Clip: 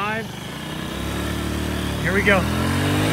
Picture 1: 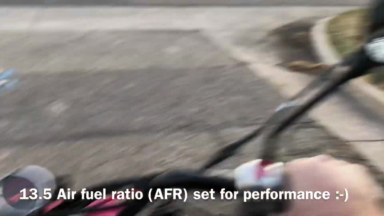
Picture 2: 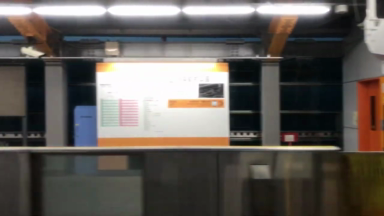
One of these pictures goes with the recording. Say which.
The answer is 1